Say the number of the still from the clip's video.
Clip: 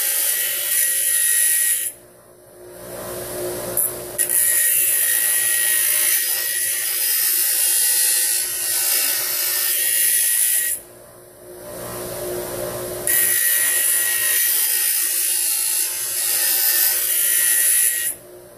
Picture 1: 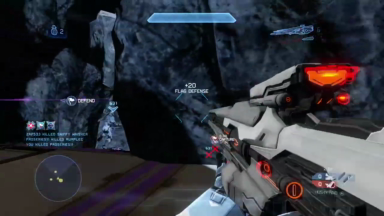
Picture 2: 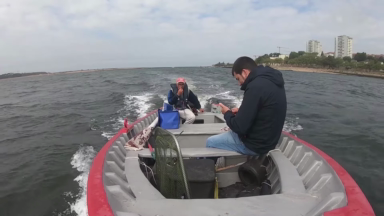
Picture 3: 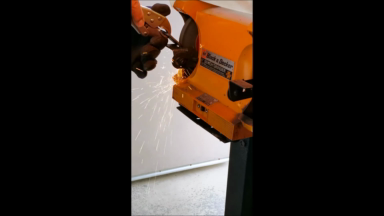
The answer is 3